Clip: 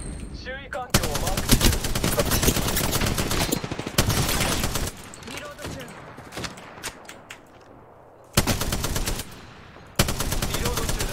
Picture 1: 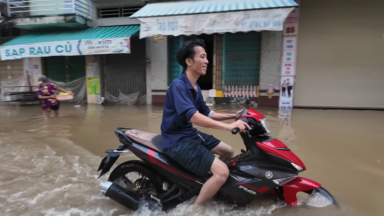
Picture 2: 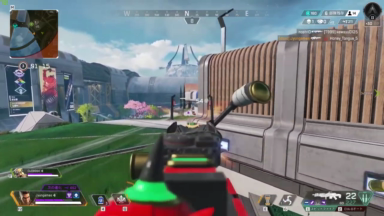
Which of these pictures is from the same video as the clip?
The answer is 2